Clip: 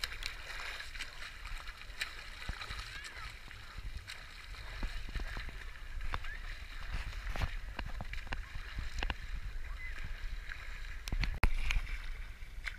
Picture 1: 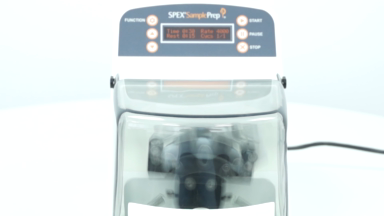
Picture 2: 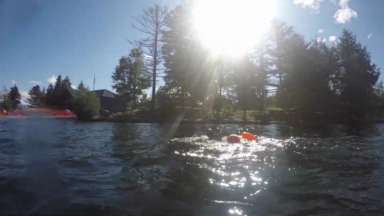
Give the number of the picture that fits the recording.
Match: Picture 2